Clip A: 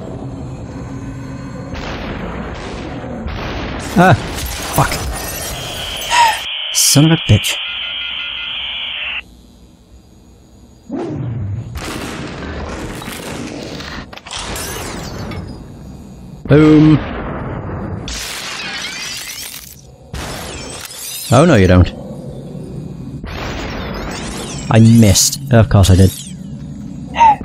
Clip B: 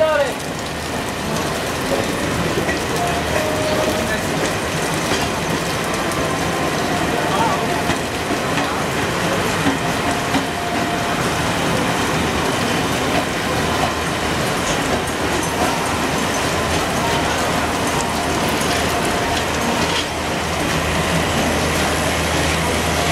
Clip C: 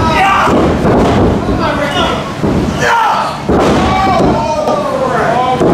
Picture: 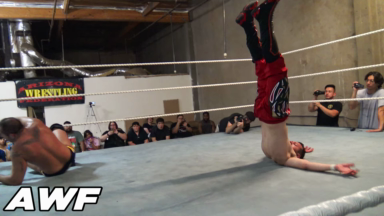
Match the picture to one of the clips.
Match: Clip C